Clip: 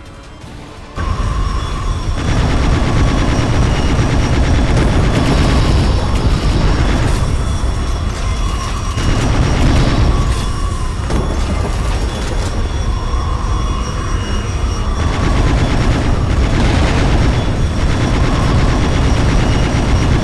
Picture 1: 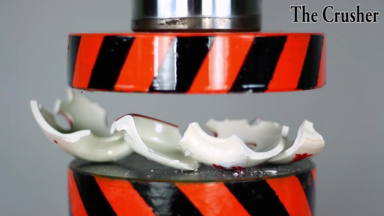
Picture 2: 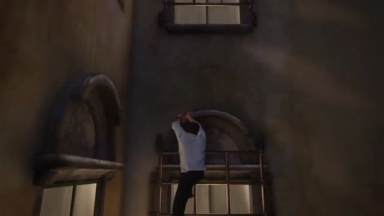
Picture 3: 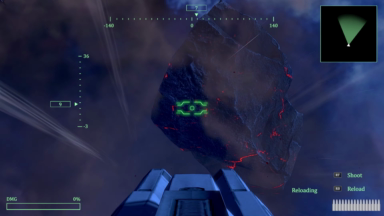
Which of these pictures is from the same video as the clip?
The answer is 3